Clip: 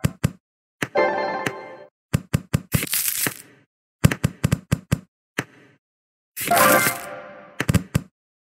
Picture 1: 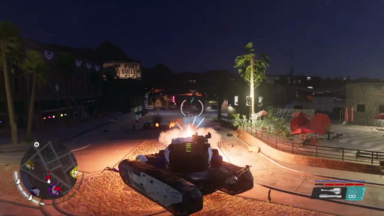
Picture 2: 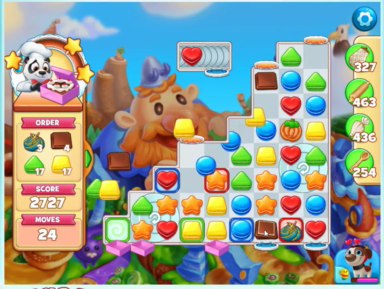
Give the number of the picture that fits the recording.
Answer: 2